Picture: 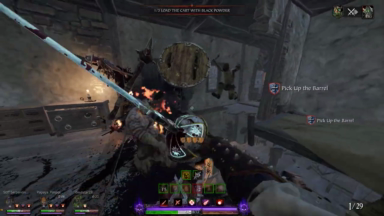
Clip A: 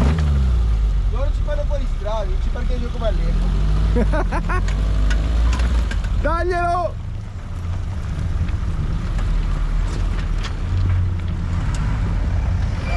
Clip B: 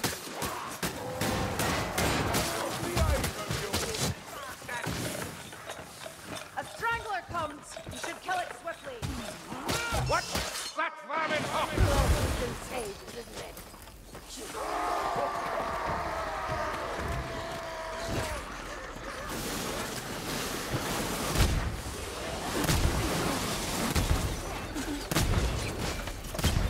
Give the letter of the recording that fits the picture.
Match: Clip B